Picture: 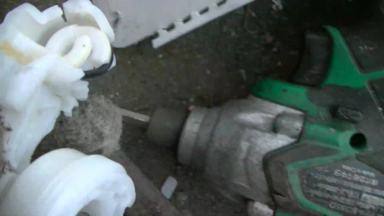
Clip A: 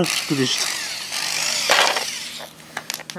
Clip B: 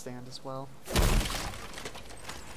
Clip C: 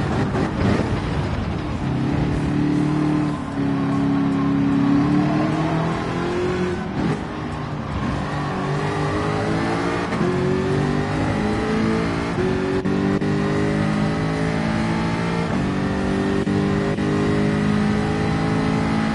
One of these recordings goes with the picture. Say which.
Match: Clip A